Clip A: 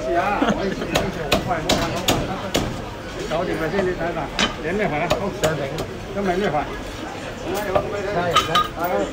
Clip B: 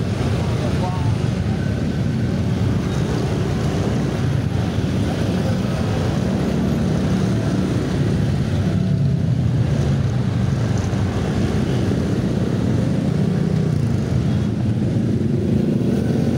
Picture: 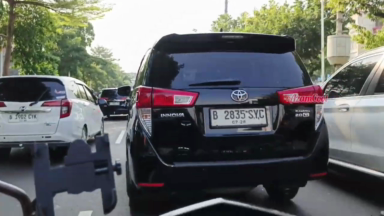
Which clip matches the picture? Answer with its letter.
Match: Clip B